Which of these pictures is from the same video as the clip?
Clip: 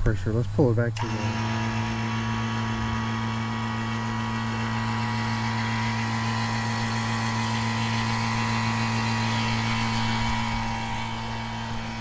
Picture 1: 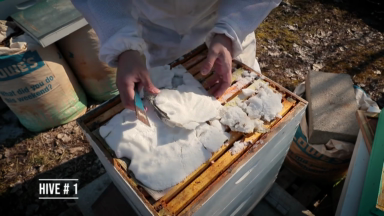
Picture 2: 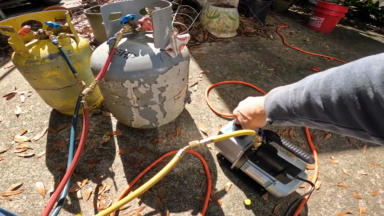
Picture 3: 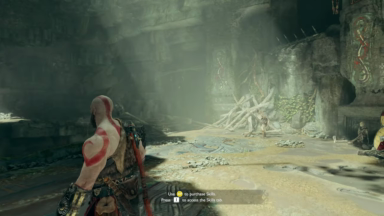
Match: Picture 2